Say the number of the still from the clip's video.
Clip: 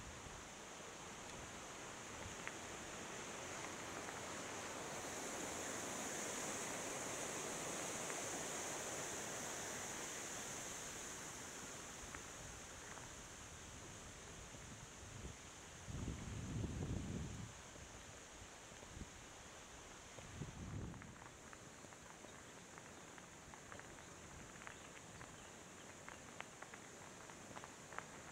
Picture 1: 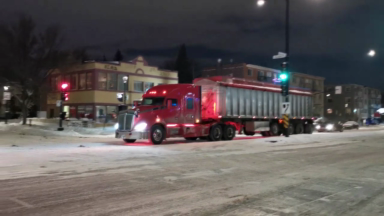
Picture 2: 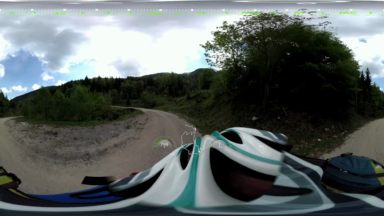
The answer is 2